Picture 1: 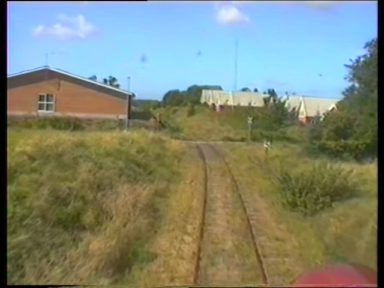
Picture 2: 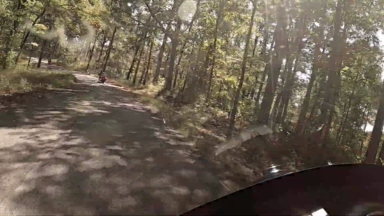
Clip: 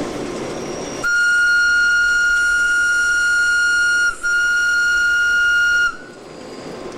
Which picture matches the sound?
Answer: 1